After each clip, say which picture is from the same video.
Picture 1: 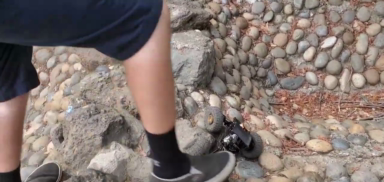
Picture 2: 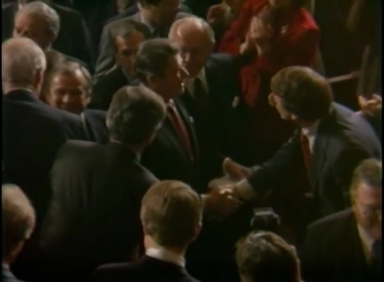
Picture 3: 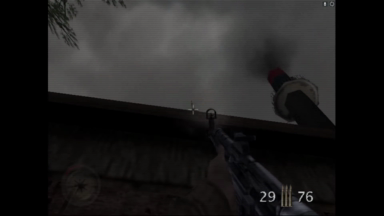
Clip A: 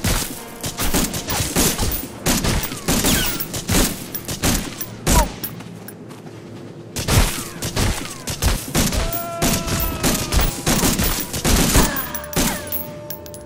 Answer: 3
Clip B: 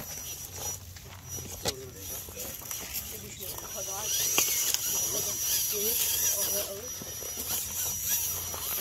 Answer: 1